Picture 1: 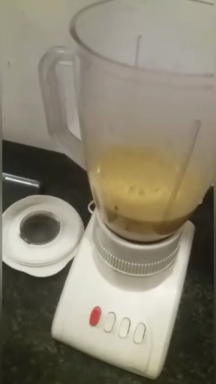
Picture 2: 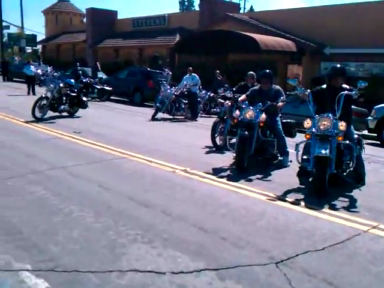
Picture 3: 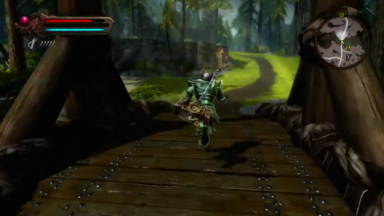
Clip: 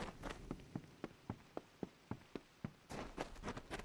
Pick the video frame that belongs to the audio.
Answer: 3